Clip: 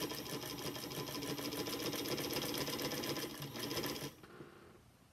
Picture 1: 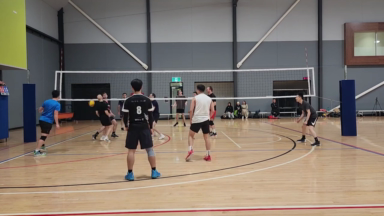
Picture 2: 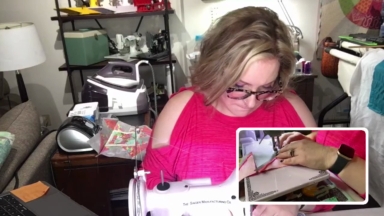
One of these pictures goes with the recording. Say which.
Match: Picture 2